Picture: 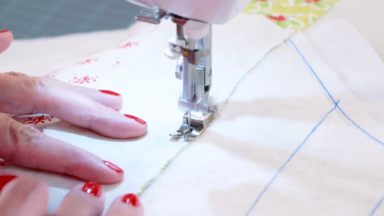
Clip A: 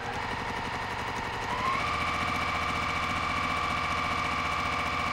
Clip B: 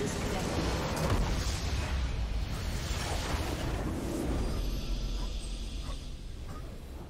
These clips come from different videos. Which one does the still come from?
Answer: A